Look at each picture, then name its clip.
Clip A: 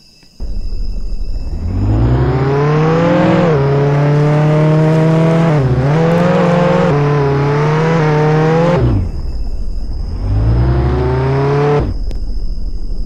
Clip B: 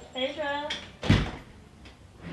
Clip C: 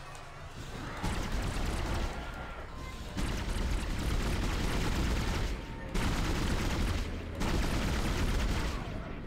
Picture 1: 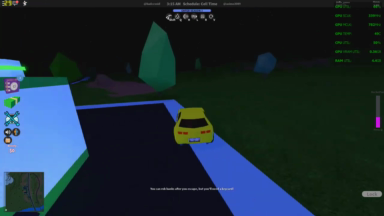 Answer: A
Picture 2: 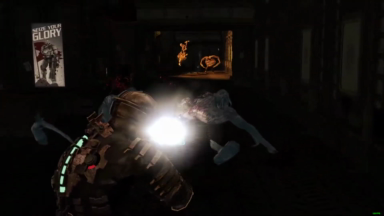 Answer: C